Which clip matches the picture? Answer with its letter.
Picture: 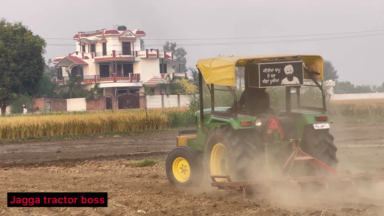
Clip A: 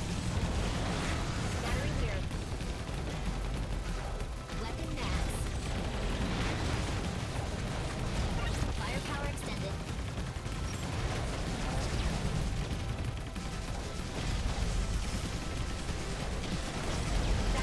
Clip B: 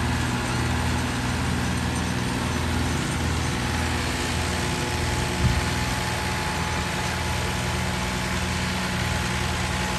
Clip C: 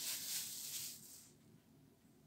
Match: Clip B